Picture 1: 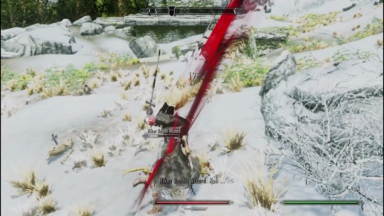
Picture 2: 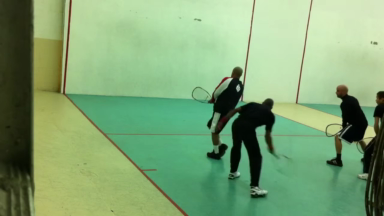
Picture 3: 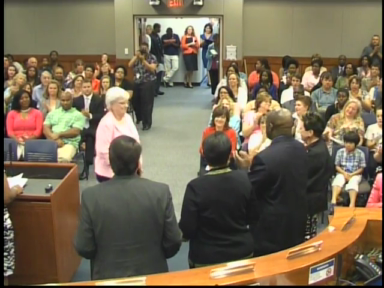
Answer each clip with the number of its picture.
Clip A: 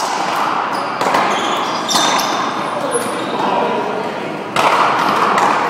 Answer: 2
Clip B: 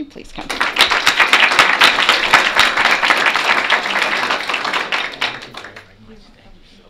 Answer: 3